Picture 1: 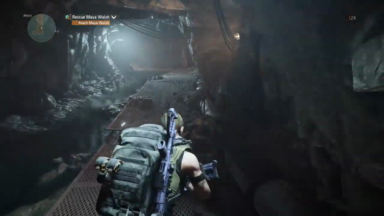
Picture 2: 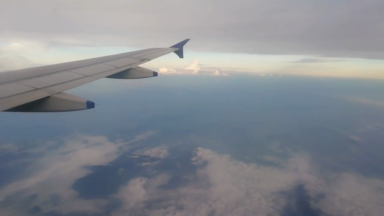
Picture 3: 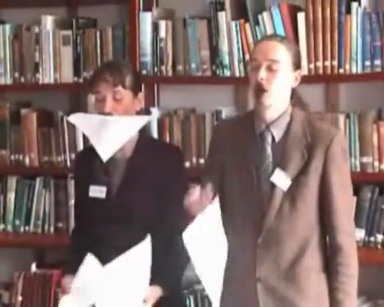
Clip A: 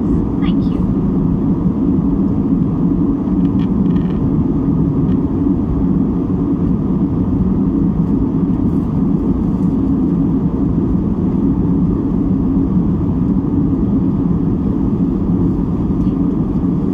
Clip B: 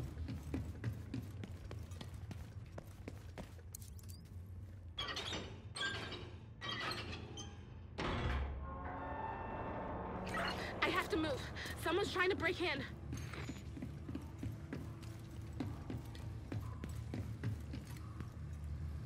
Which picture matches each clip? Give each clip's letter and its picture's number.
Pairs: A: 2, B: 1